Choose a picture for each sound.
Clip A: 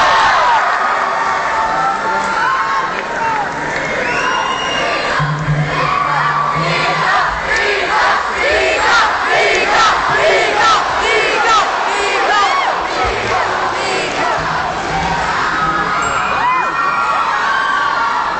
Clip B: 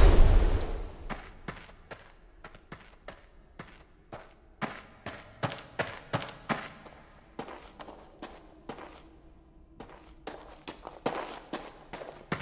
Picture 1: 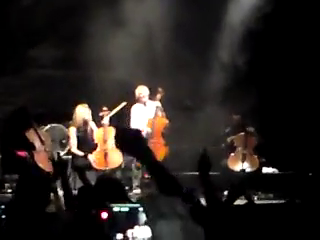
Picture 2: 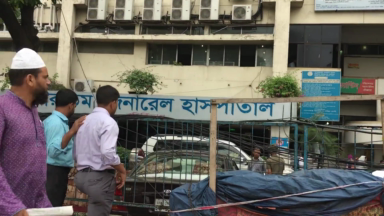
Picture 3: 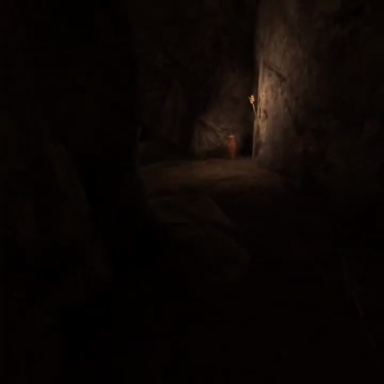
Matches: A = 1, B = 3